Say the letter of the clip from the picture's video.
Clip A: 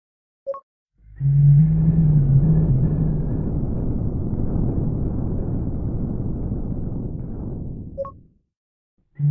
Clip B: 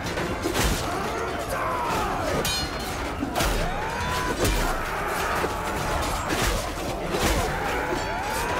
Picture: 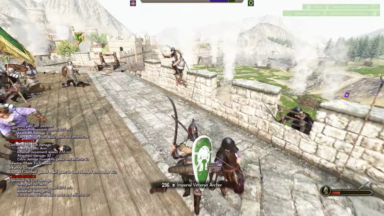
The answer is B